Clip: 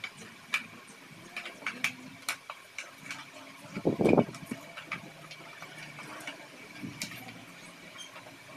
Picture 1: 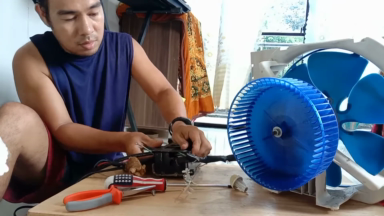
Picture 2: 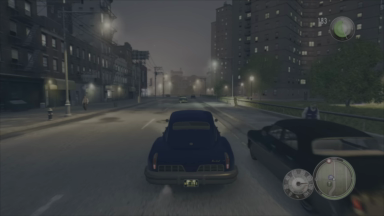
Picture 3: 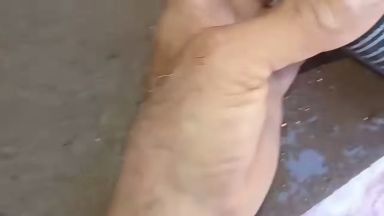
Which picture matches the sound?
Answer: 1